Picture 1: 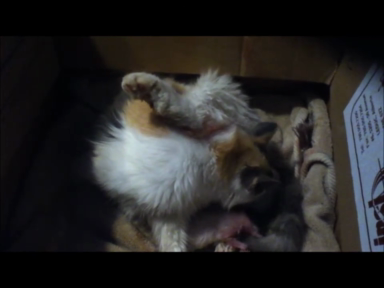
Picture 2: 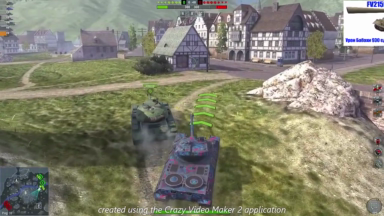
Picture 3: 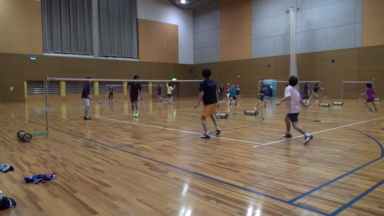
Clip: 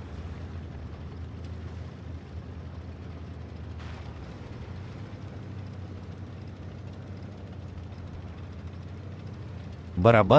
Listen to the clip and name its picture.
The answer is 2